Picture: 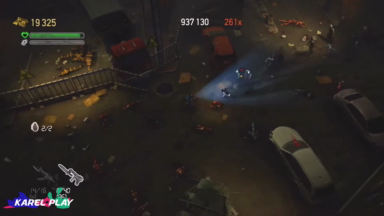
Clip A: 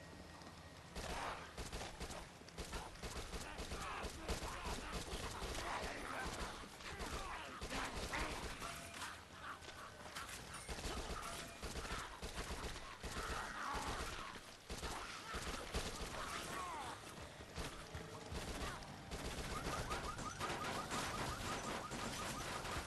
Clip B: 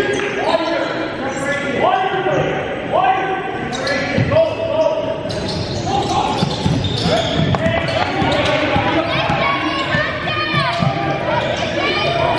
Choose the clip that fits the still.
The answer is A